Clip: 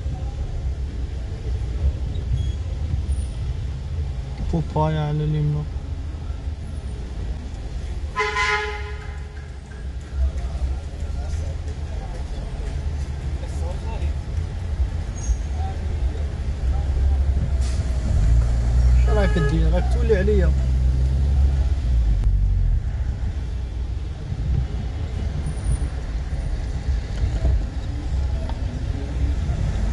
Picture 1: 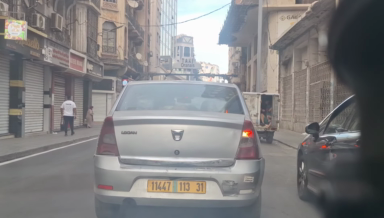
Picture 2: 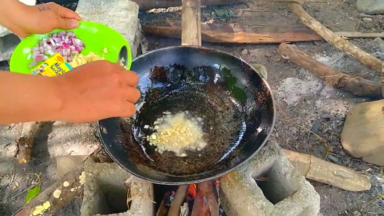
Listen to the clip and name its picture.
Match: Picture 1